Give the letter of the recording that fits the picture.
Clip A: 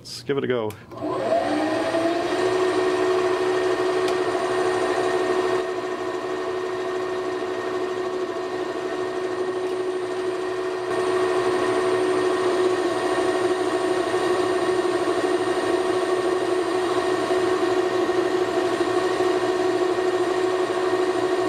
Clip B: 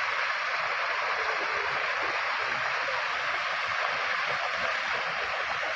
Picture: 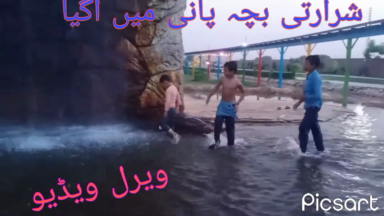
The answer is B